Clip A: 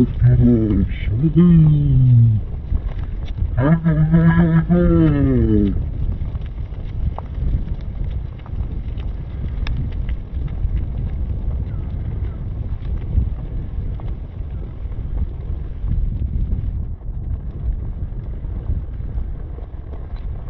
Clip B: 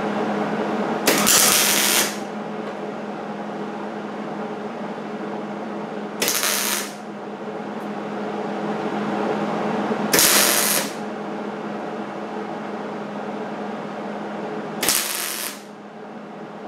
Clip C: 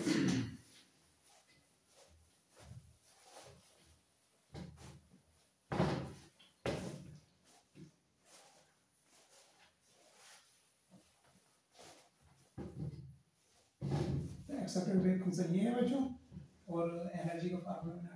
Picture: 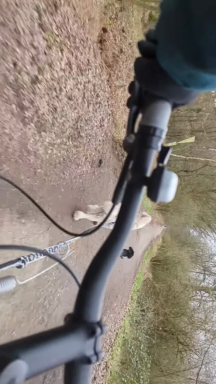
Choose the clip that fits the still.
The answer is A